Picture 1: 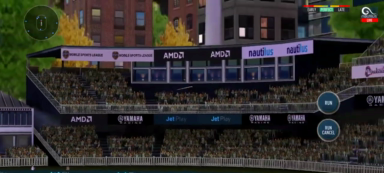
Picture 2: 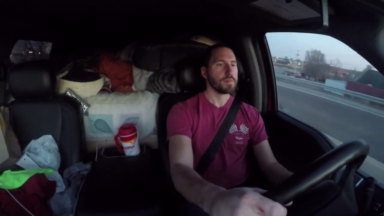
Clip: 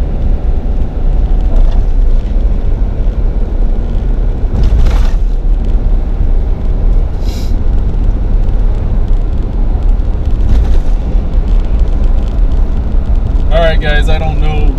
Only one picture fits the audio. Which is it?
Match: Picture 2